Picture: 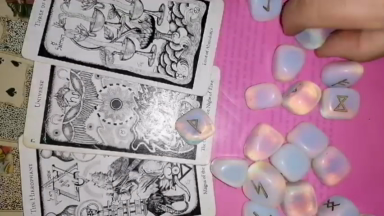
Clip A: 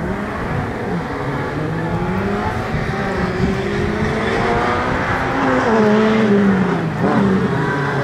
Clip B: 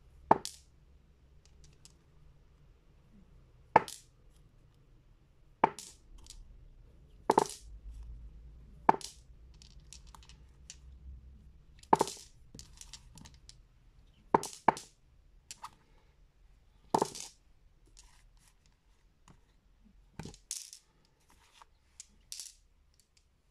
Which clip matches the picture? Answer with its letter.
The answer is B